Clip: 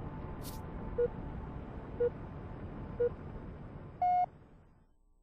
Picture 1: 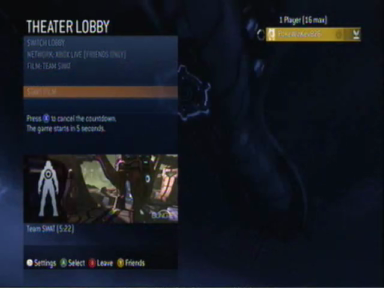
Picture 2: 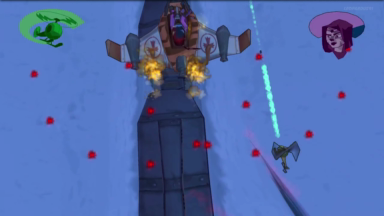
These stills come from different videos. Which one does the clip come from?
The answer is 1